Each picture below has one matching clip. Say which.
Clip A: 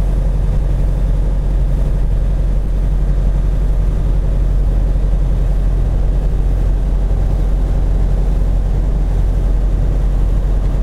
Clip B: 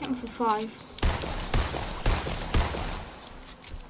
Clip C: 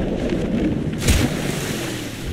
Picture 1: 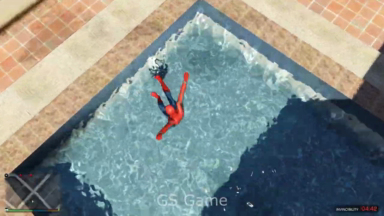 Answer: C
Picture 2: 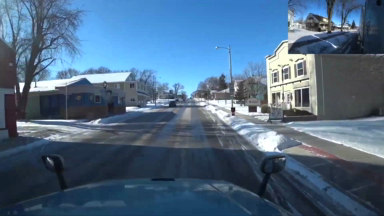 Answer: A